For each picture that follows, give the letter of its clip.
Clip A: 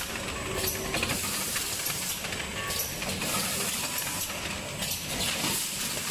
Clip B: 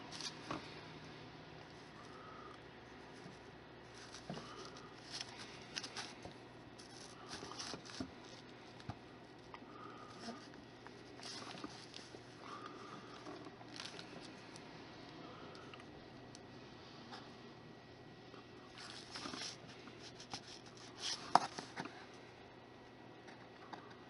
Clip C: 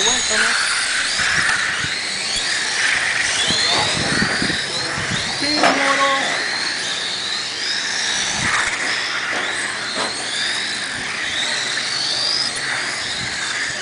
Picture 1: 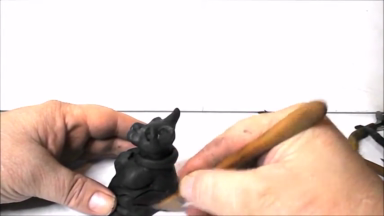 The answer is B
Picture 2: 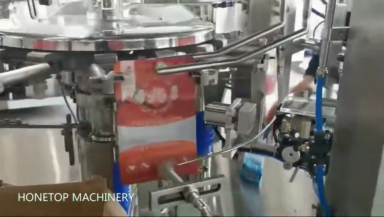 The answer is A